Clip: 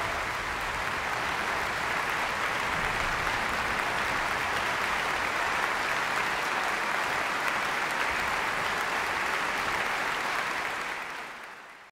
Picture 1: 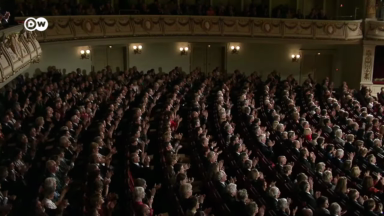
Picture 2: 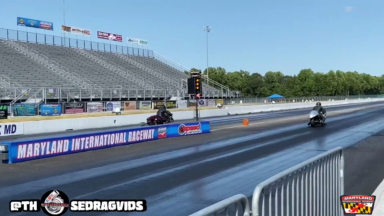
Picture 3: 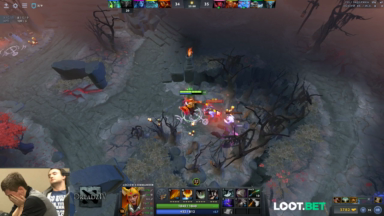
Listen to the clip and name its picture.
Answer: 1